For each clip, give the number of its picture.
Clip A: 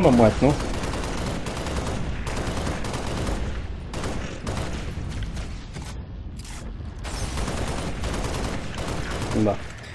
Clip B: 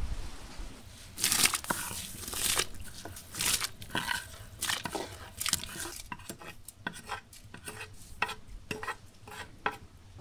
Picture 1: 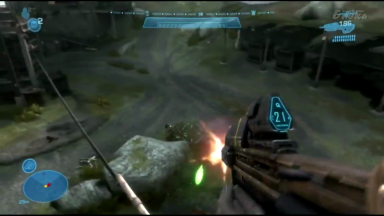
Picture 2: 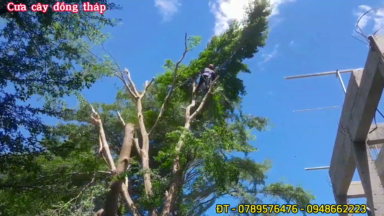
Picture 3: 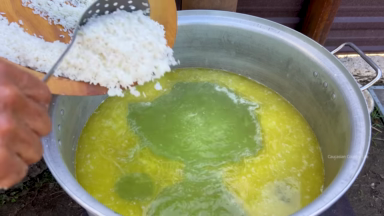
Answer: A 1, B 3